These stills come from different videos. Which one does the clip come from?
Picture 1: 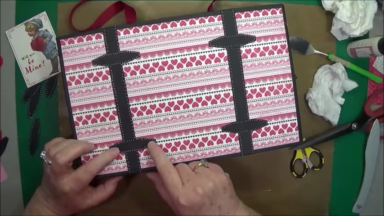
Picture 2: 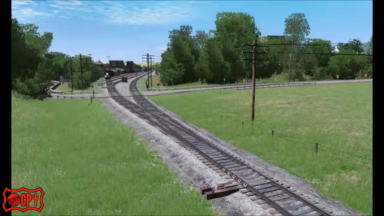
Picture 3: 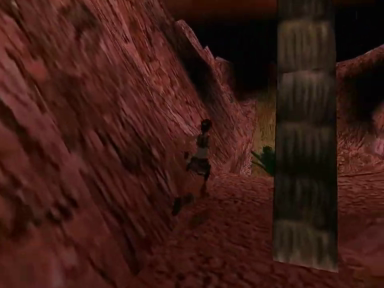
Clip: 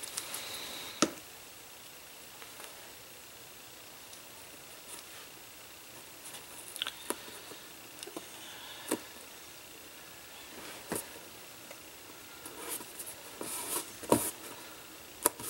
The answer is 1